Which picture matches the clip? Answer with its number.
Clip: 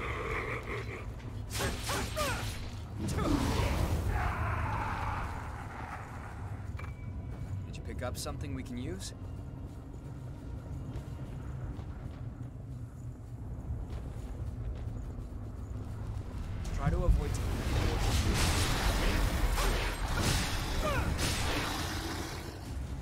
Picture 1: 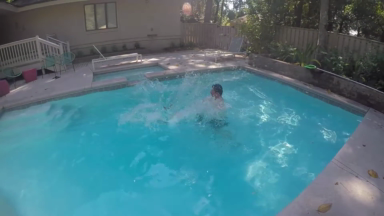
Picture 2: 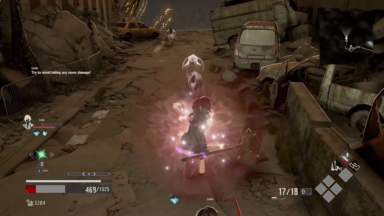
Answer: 2